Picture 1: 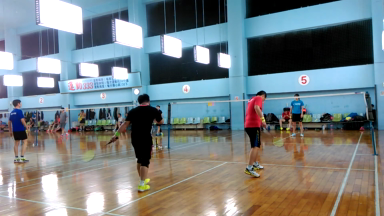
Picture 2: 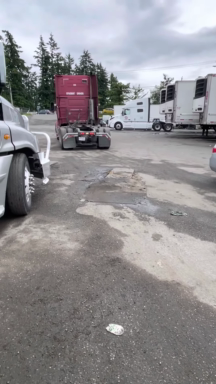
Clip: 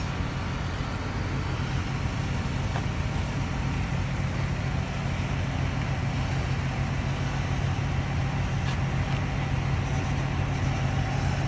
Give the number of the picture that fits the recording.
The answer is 2